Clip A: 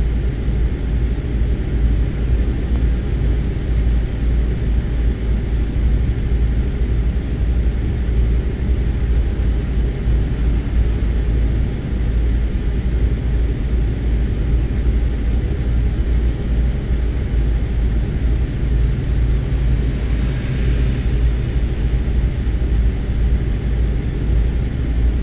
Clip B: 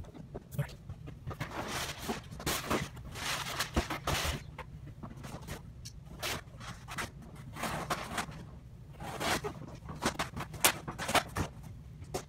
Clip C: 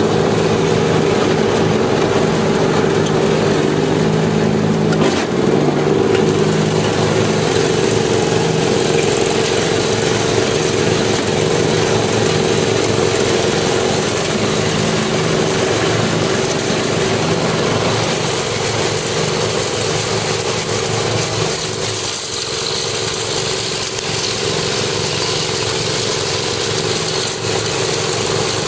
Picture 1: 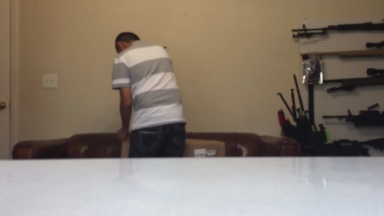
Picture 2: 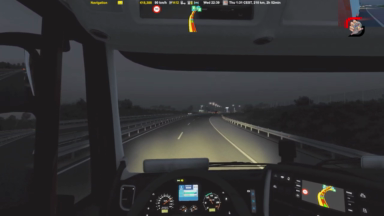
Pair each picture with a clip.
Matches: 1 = B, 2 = A